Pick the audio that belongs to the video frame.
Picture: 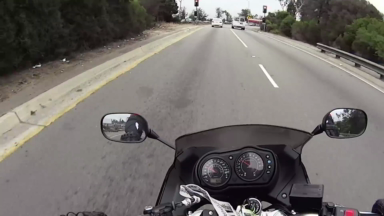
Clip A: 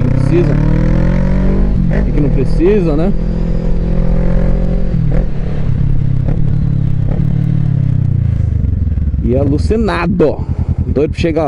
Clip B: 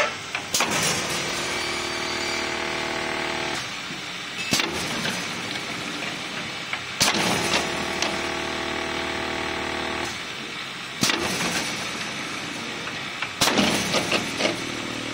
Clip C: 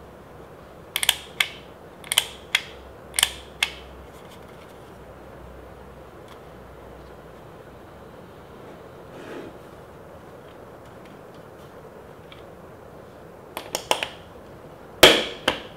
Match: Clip A